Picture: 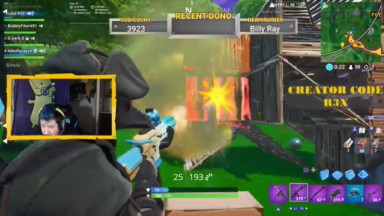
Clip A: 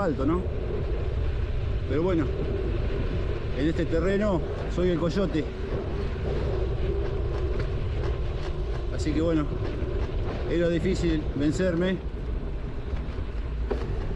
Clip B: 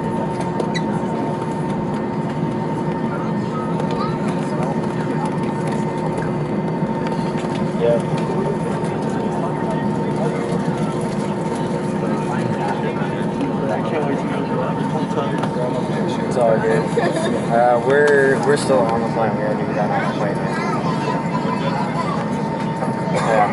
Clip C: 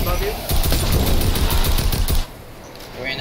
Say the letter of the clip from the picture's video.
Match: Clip C